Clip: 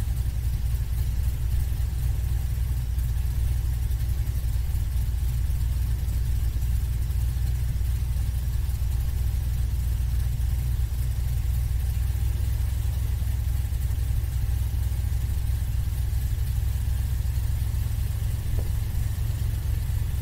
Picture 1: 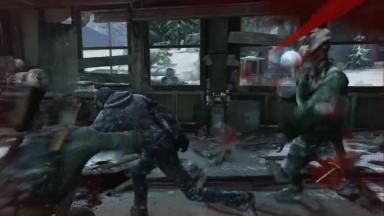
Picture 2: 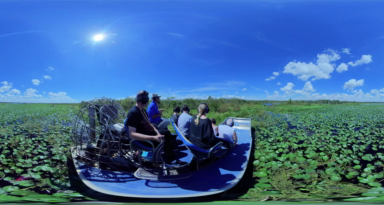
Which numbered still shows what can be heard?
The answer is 2